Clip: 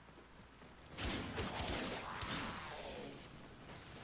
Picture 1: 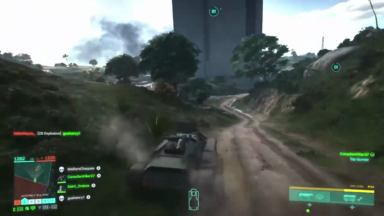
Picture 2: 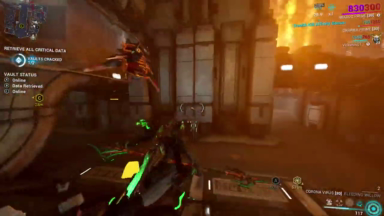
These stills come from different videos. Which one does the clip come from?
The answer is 2